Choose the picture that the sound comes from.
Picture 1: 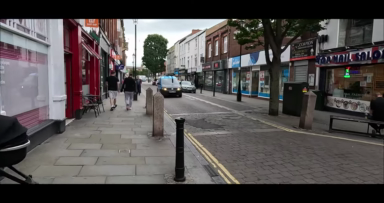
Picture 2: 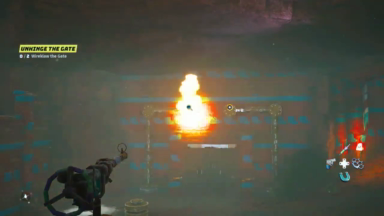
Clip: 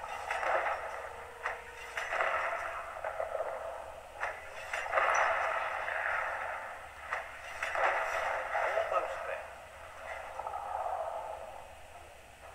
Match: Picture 2